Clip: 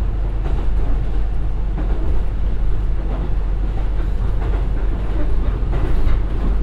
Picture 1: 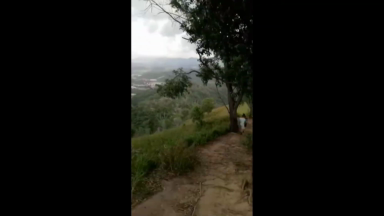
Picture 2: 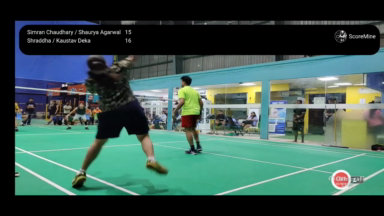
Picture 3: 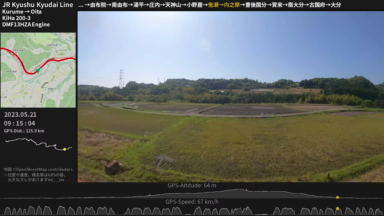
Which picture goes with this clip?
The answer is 3